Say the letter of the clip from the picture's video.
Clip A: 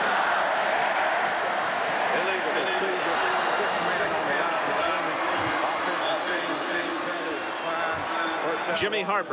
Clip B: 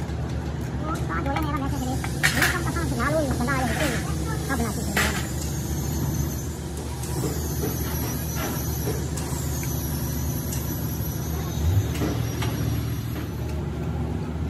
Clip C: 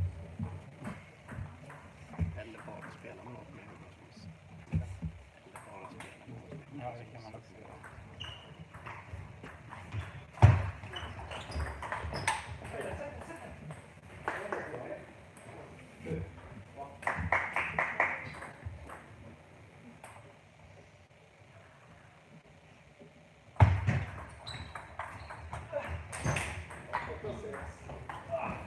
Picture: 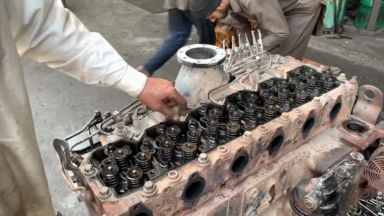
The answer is B